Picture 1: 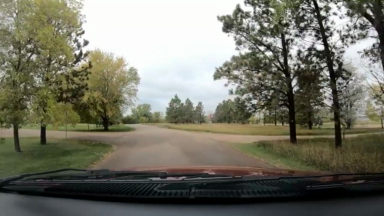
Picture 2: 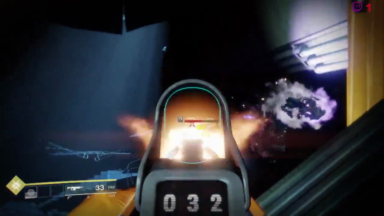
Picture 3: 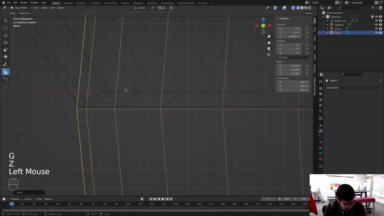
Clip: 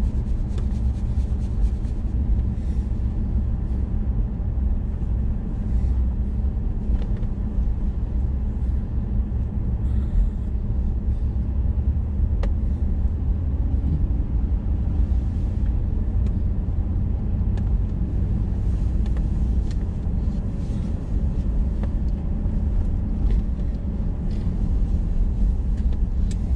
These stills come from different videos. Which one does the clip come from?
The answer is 1